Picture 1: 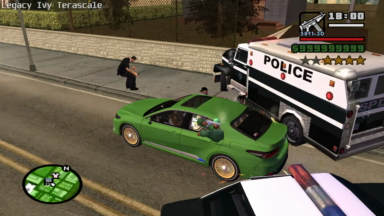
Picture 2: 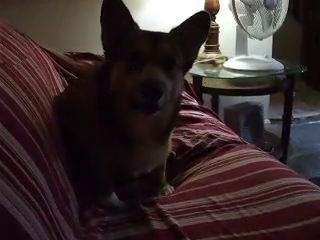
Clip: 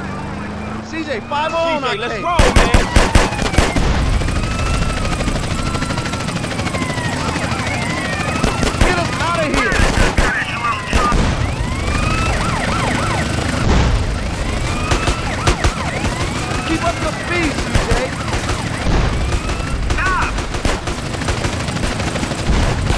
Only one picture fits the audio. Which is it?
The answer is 1